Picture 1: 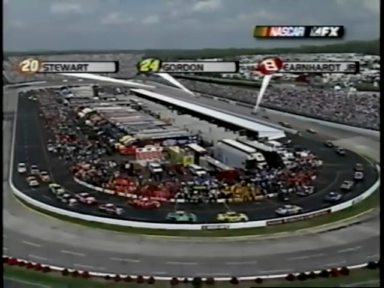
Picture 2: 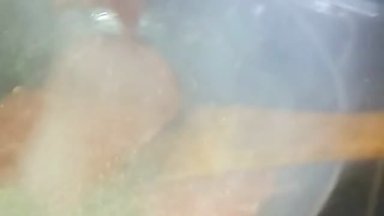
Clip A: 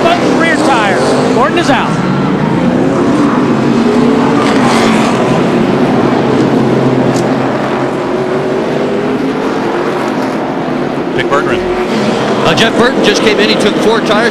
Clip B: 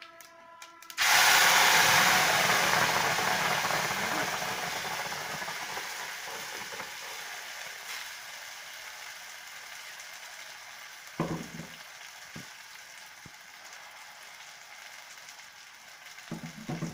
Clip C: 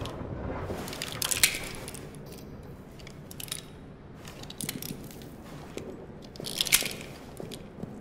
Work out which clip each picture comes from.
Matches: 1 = A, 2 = B